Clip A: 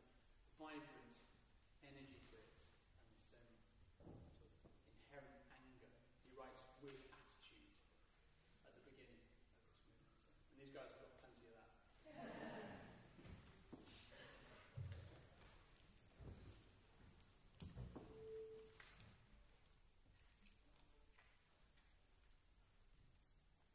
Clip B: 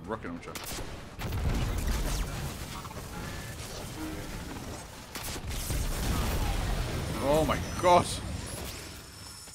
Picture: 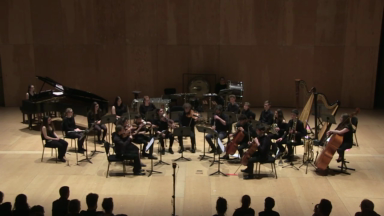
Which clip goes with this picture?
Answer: A